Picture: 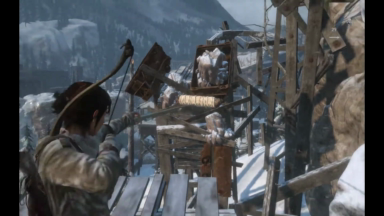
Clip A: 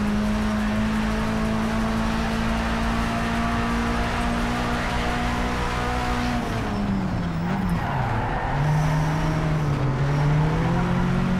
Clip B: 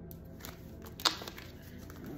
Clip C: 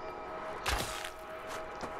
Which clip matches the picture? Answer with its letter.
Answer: C